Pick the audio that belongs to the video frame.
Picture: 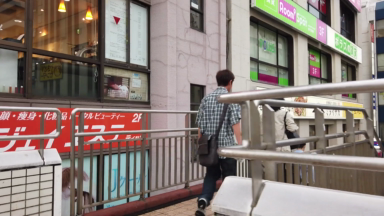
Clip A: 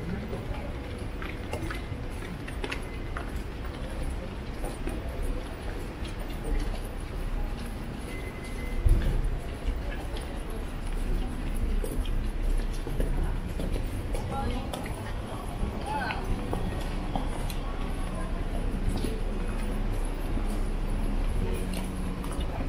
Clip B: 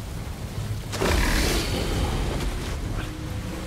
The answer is A